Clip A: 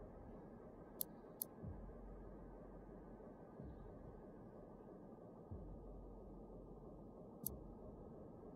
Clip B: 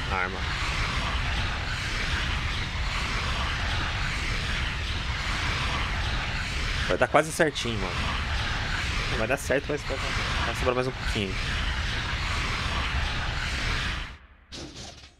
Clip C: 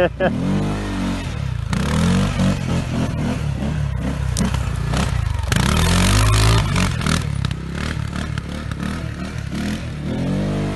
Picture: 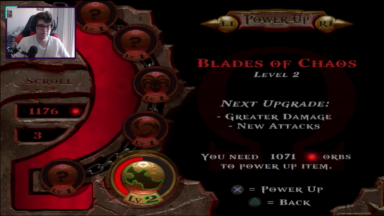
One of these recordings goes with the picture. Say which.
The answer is B